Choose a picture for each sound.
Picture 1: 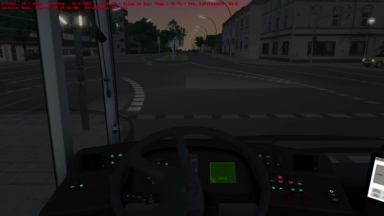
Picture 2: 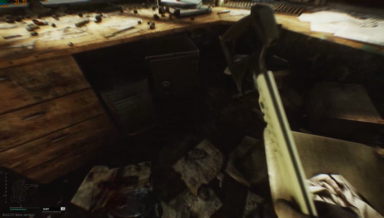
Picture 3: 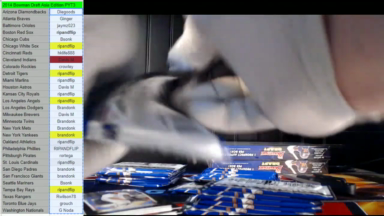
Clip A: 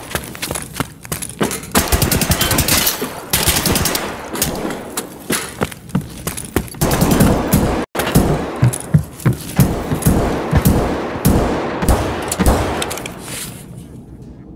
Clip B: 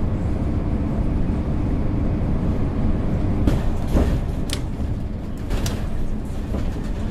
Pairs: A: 2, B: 1